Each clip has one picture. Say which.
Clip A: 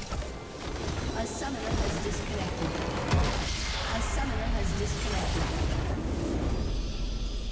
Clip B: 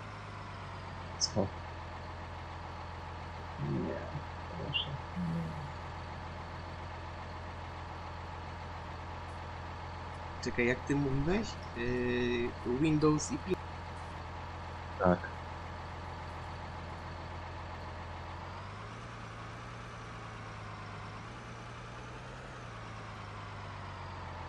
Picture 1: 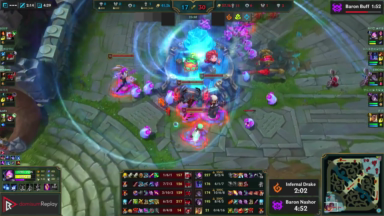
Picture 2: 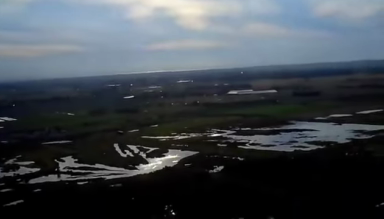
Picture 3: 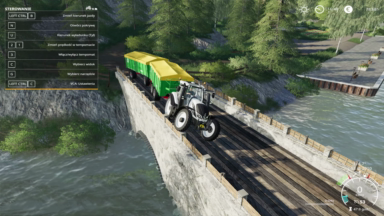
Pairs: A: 1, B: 3